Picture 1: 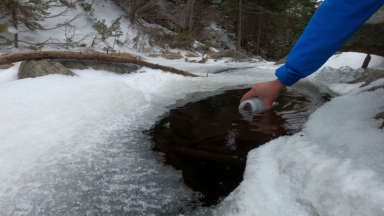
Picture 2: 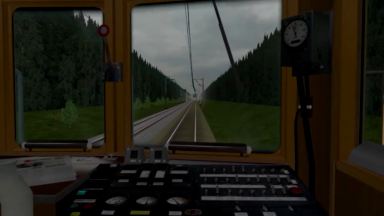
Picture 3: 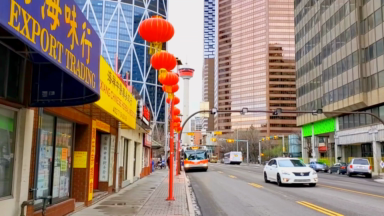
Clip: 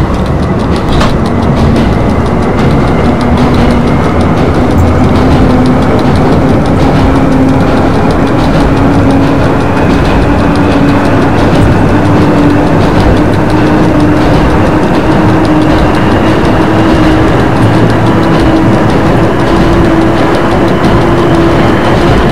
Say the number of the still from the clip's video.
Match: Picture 2